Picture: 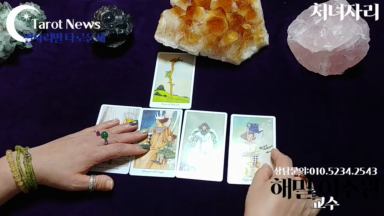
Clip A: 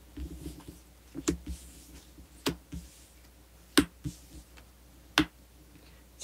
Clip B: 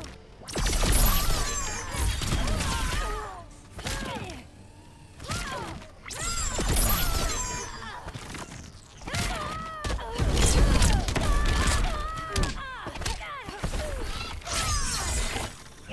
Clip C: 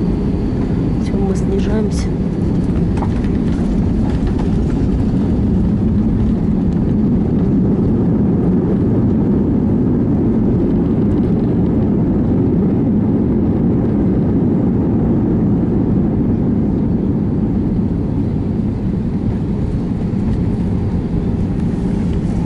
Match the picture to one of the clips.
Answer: A